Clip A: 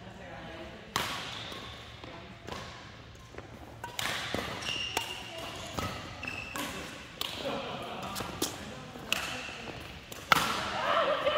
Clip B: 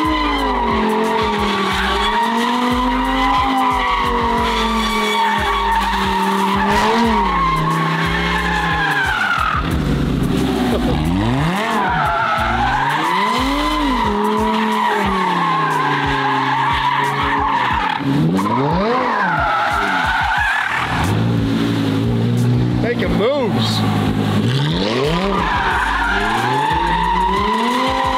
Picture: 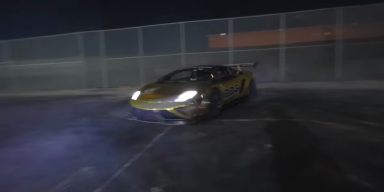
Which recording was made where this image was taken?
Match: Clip B